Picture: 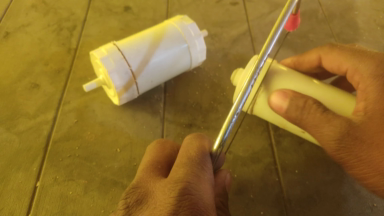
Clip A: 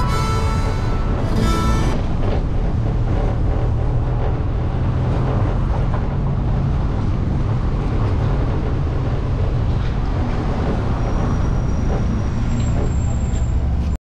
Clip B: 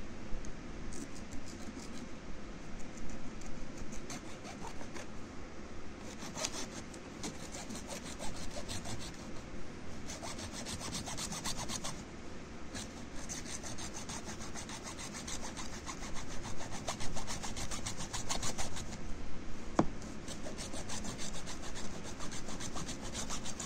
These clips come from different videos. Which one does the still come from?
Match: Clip B